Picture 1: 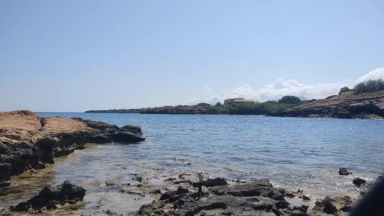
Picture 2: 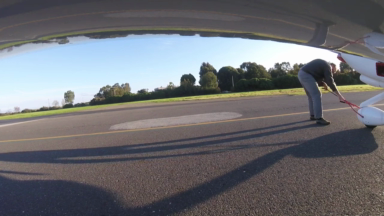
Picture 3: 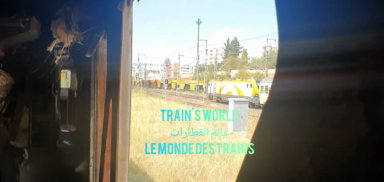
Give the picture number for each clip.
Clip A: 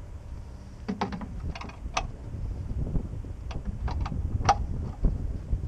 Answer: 2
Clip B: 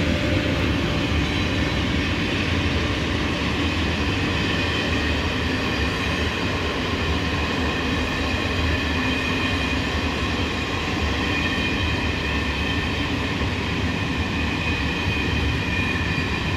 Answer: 3